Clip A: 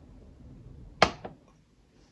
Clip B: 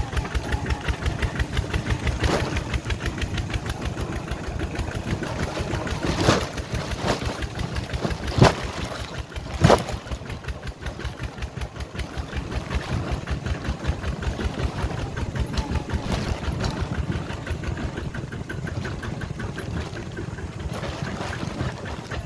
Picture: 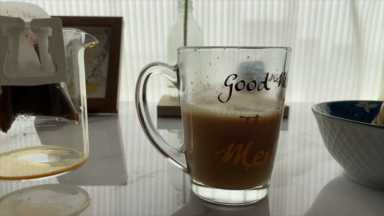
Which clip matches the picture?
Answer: A